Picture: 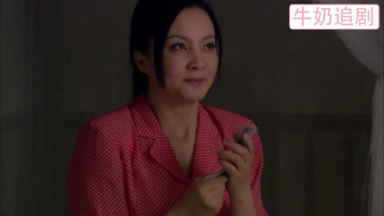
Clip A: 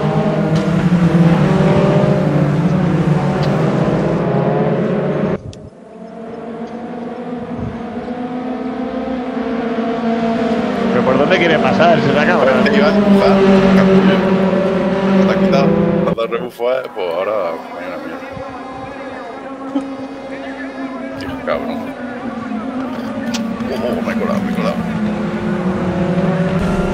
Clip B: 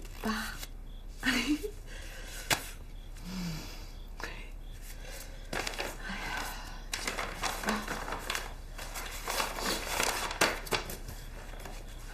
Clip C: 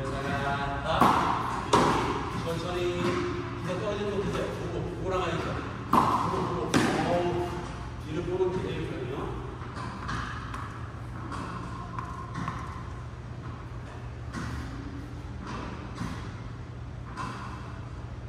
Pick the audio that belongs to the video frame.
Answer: B